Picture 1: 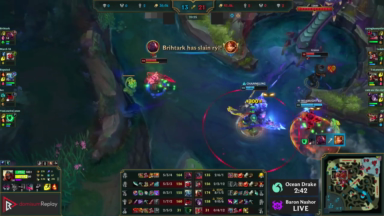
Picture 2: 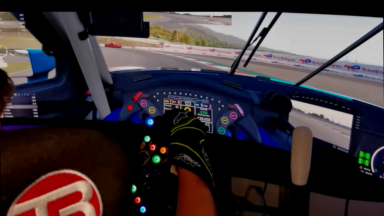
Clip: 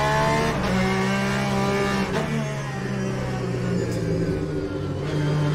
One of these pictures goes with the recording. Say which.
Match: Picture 2